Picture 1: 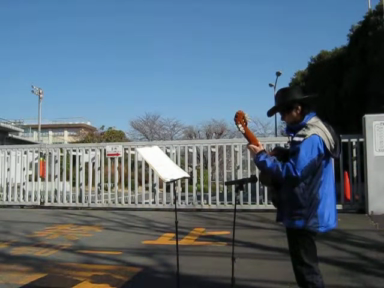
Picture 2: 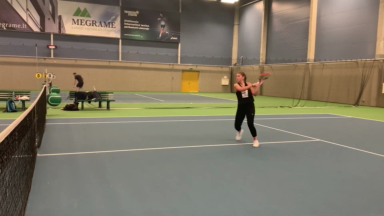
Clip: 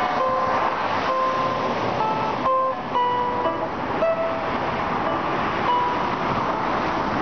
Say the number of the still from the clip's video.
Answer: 1